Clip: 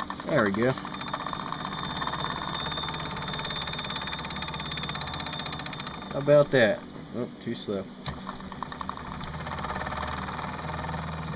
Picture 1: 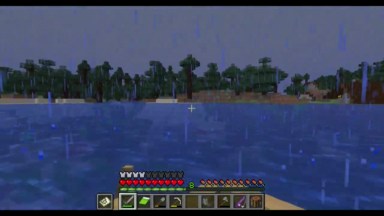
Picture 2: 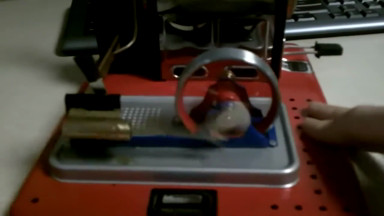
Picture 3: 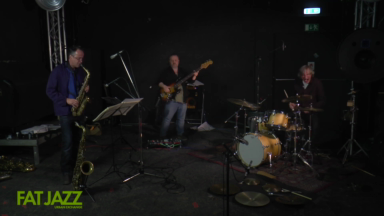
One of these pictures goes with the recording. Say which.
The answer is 2